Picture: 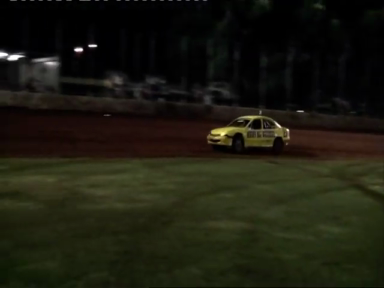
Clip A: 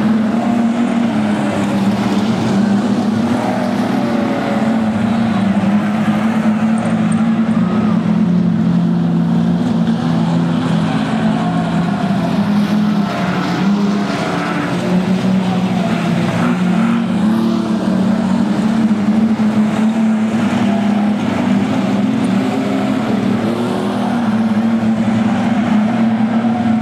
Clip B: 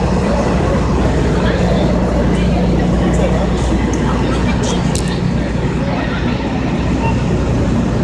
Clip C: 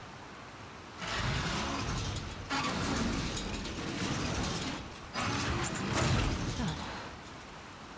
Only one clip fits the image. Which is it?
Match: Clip A